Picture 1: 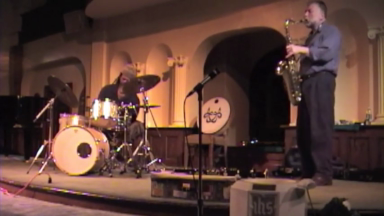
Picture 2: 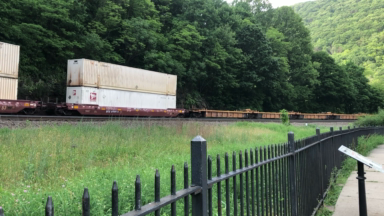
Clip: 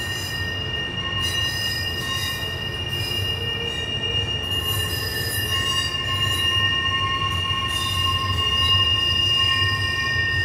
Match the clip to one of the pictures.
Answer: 2